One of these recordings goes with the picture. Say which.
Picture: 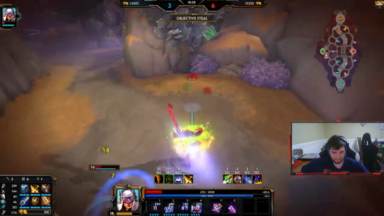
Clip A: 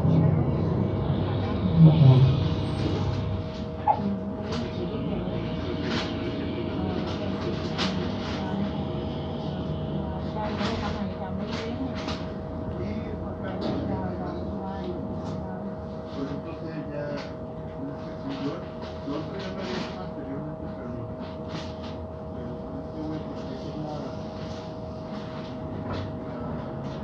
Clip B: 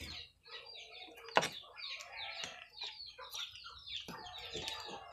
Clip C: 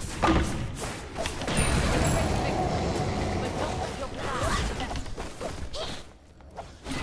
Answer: C